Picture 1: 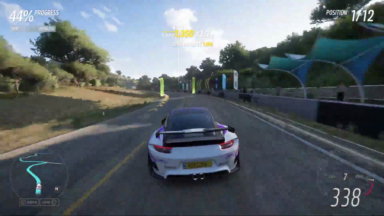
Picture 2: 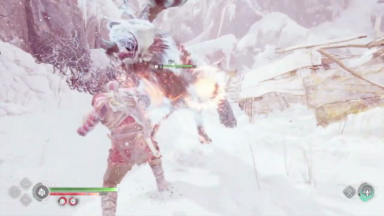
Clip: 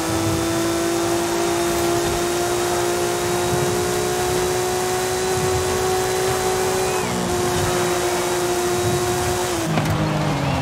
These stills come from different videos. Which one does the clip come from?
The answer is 1